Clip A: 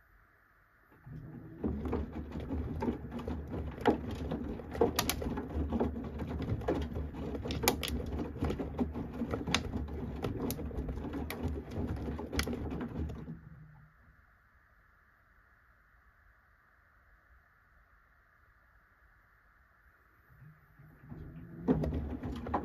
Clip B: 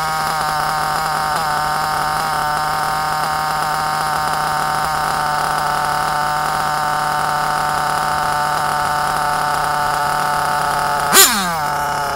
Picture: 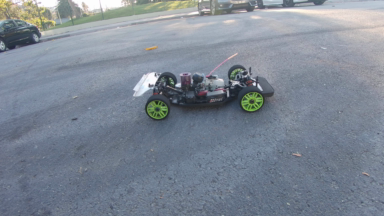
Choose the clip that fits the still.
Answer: B